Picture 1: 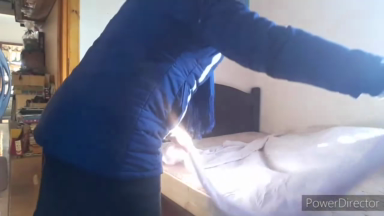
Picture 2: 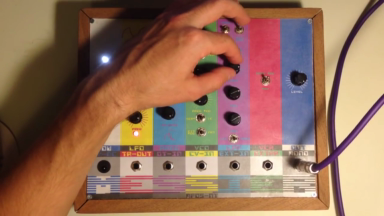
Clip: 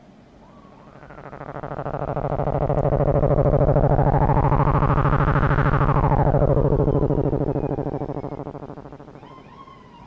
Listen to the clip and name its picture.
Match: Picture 2